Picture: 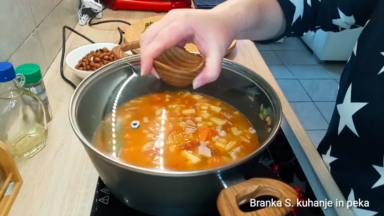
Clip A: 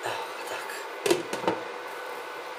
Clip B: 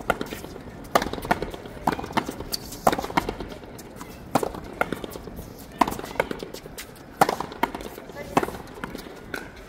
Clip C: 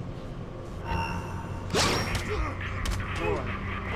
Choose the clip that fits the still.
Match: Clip A